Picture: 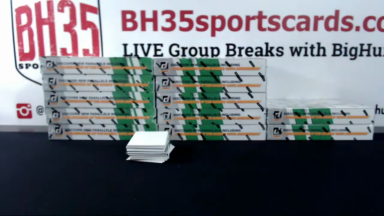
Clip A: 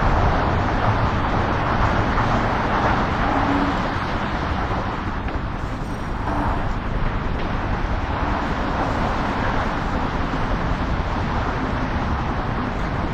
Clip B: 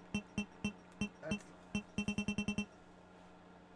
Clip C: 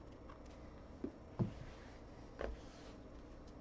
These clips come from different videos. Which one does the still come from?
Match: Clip C